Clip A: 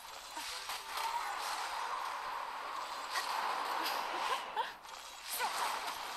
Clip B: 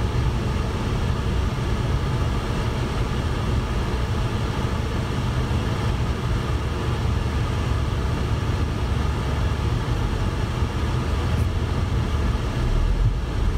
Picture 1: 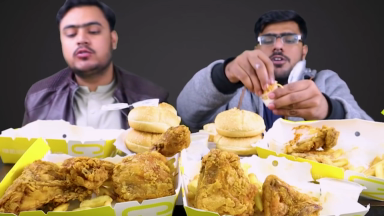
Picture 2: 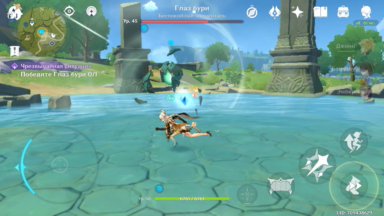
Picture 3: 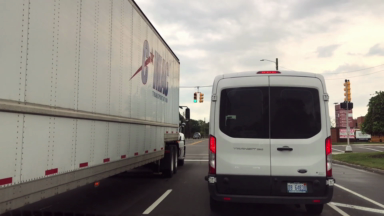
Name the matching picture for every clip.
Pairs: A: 2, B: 3